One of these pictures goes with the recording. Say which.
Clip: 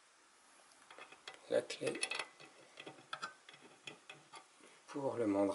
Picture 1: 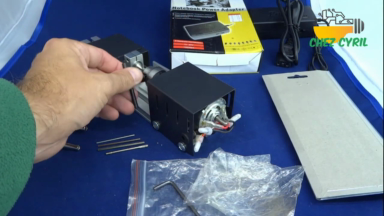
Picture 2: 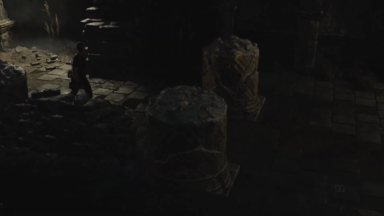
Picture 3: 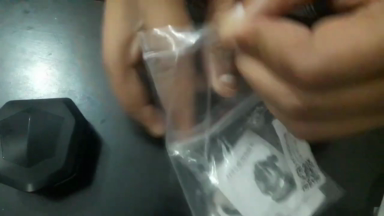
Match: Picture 1